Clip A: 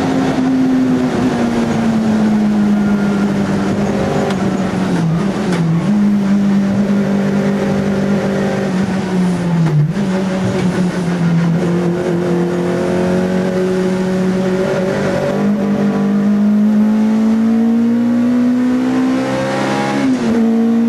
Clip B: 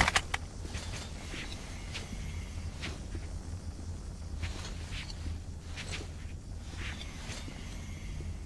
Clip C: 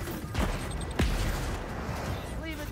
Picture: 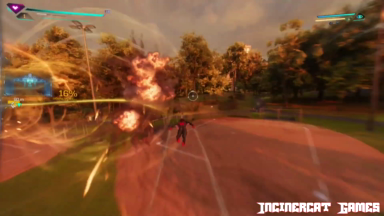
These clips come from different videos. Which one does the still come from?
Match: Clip C